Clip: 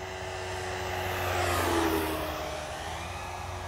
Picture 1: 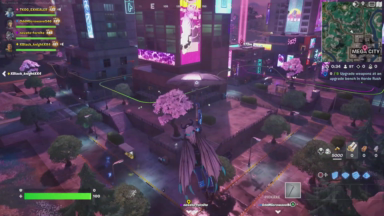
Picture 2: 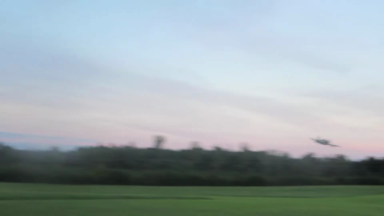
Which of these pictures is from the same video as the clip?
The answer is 2